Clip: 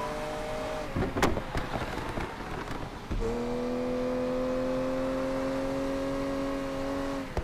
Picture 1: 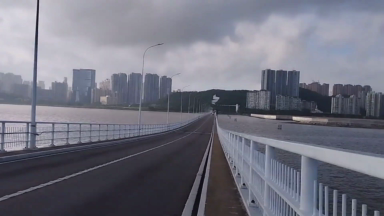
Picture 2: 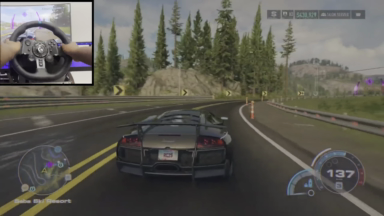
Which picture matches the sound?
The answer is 2